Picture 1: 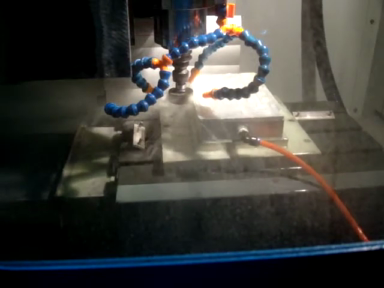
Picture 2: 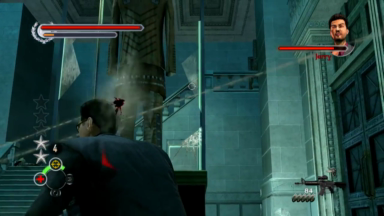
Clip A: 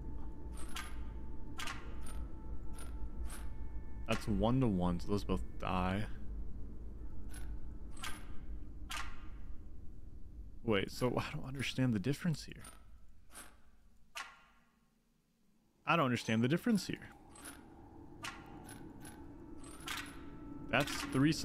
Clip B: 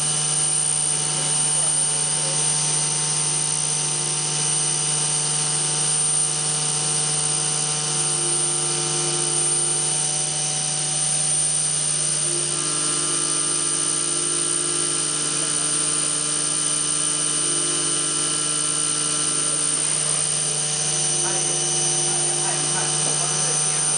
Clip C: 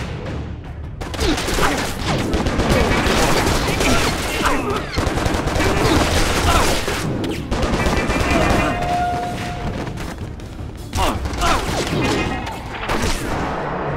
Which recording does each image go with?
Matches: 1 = B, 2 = C